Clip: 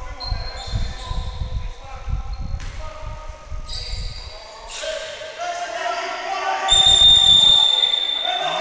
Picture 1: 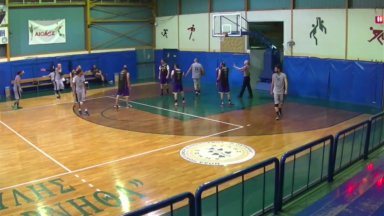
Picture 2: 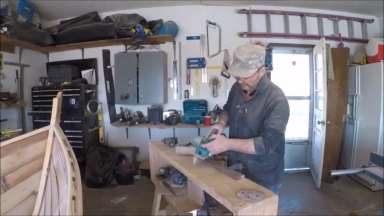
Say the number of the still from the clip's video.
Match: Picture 1